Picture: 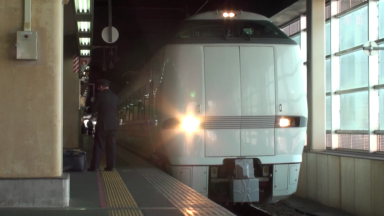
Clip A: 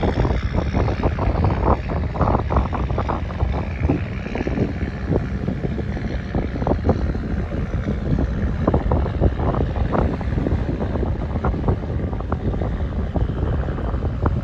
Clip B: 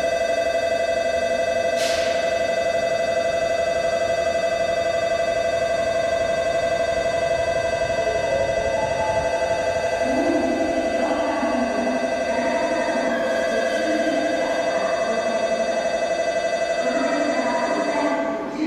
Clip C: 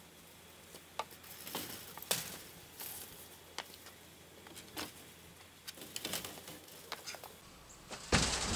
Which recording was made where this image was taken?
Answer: B